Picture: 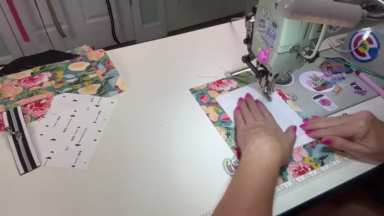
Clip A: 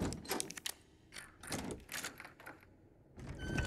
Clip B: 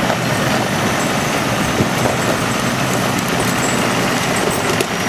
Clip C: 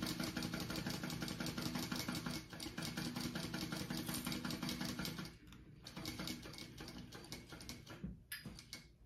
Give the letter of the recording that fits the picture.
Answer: C